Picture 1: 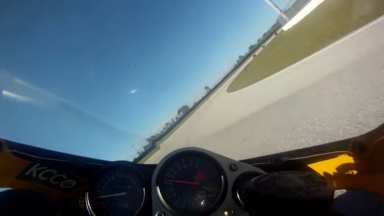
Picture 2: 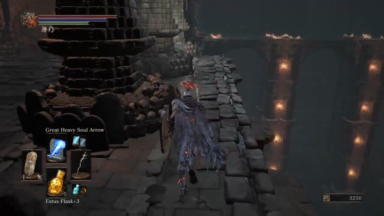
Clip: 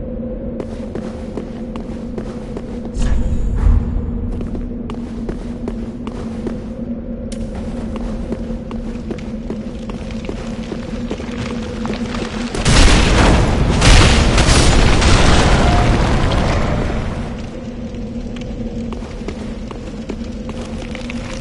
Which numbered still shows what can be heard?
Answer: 2